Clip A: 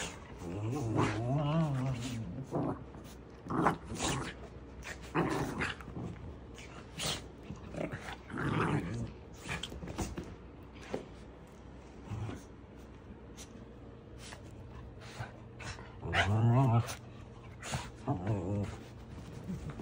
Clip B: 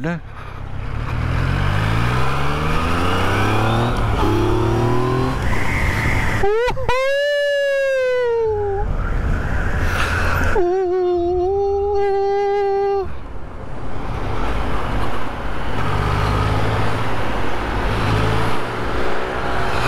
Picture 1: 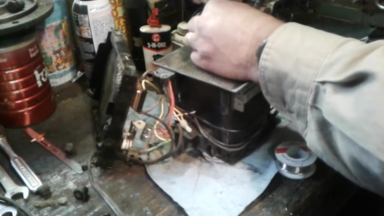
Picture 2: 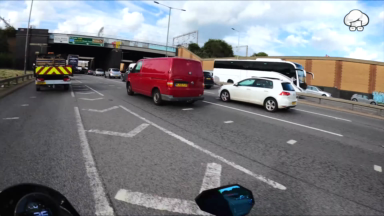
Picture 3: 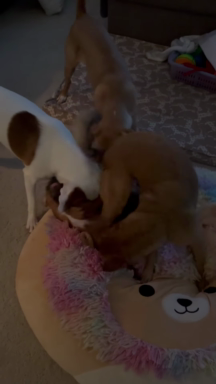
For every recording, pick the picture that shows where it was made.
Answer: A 3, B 2